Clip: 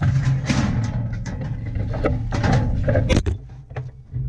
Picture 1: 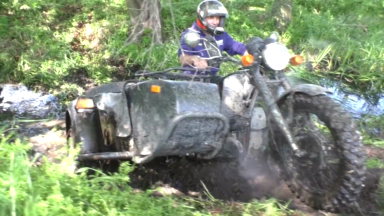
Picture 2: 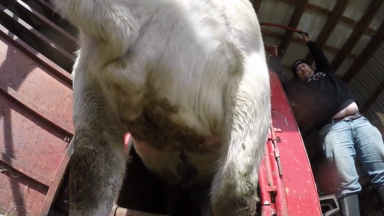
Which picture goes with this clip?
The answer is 2